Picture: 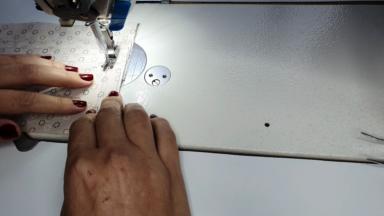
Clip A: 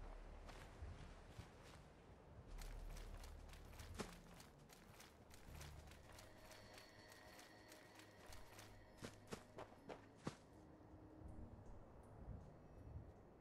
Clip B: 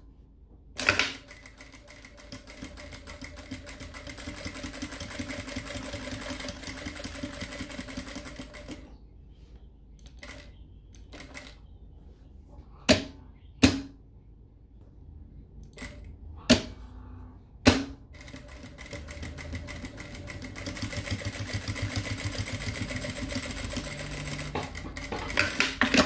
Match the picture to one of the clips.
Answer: B